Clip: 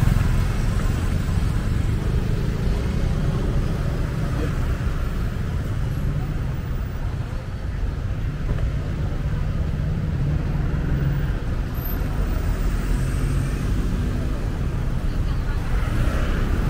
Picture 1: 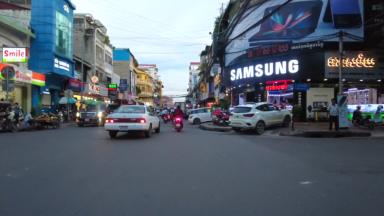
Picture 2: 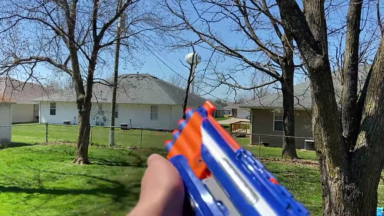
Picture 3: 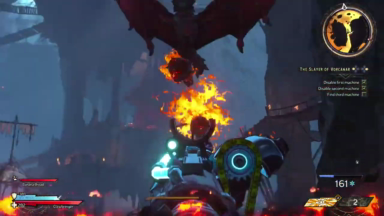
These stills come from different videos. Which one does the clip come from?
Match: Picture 1